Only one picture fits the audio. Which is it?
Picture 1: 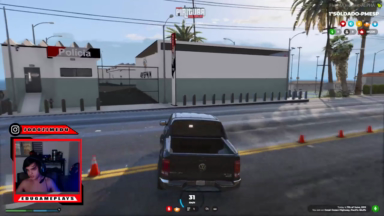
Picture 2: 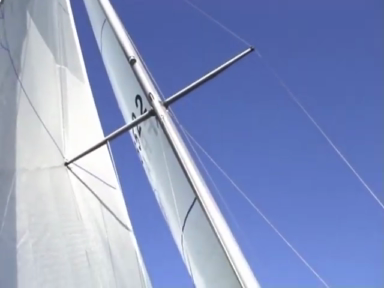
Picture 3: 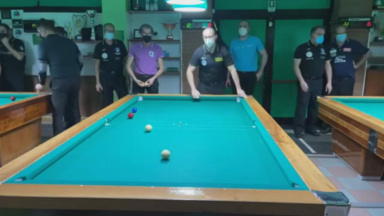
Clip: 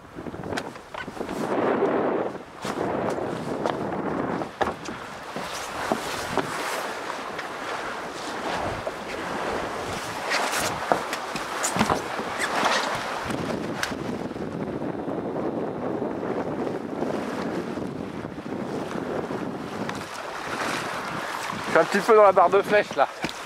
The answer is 2